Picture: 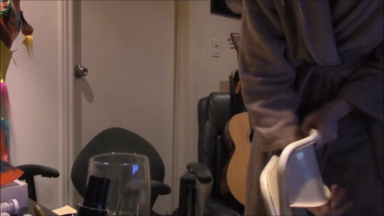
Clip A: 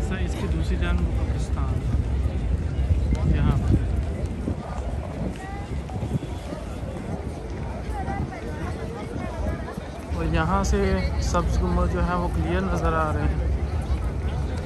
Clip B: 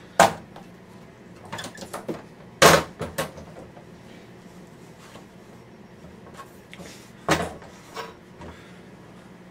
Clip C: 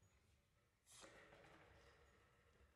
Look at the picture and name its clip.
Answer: B